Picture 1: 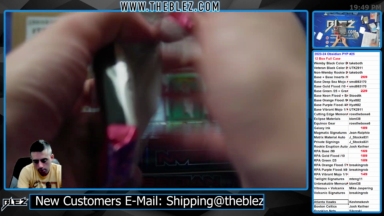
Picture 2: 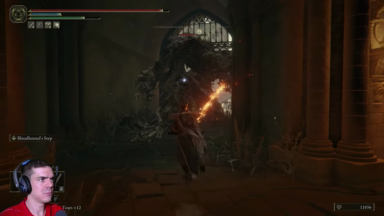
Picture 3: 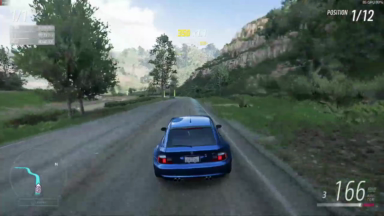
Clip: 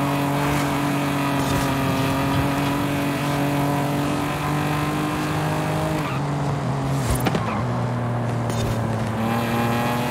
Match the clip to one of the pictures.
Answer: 3